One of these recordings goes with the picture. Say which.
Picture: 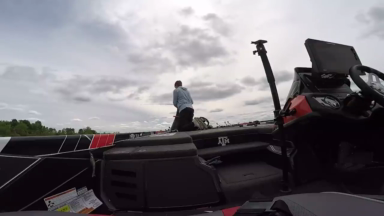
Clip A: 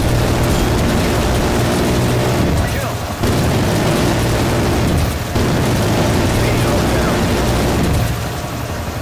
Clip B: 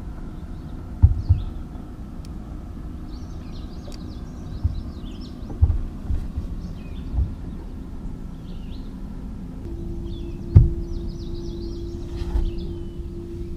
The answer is B